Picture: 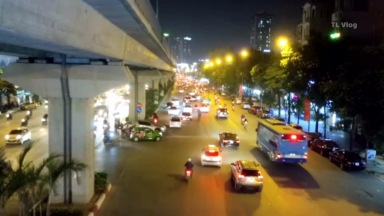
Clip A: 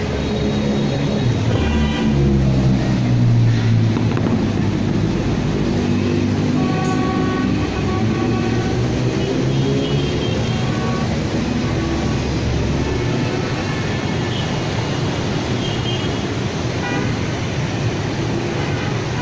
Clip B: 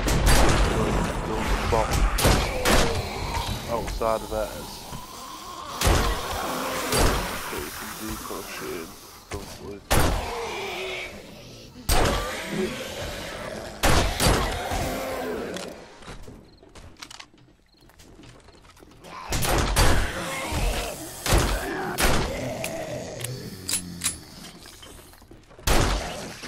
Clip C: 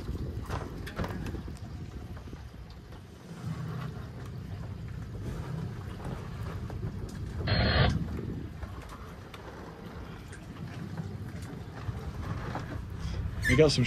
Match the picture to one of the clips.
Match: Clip A